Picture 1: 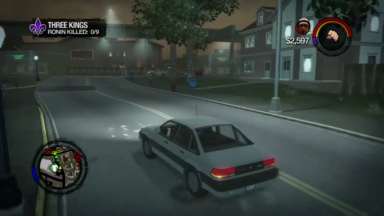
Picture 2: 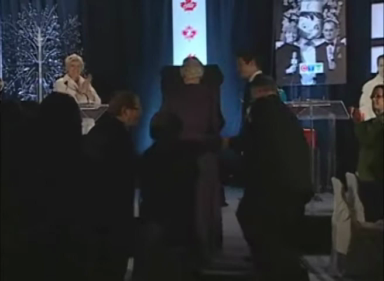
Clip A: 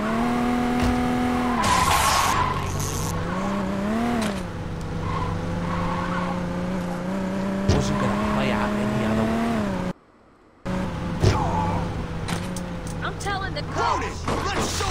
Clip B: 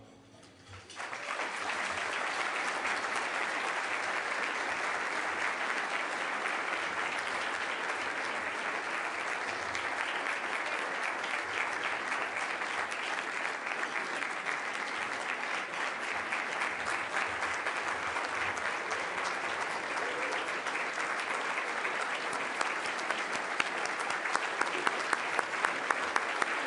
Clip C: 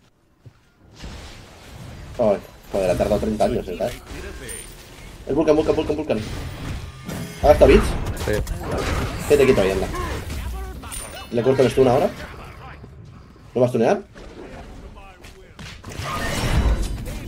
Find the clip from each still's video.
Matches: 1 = A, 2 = B